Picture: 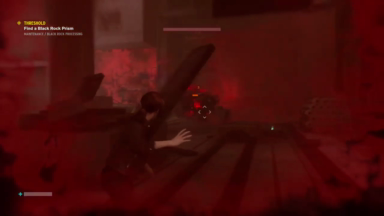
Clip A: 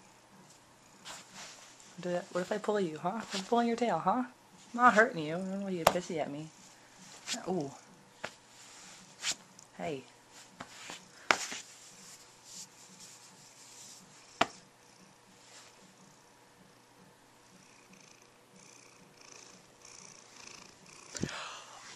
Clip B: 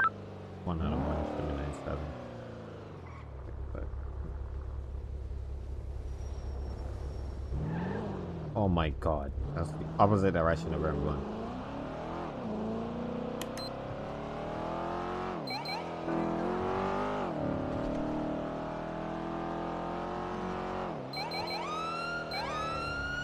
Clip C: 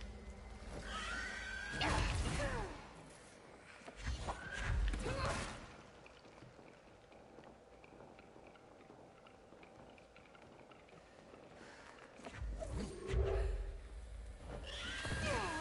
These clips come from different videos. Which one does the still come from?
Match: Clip C